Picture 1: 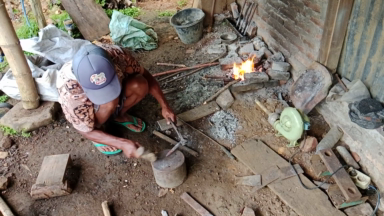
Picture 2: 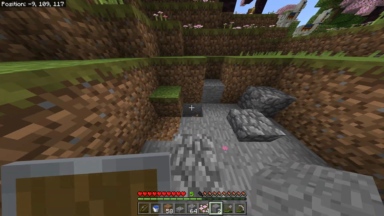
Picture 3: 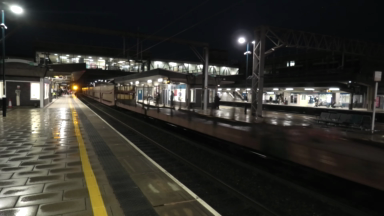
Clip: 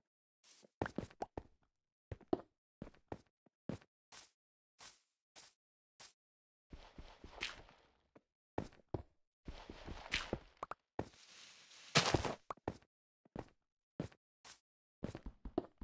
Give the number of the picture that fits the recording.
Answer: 2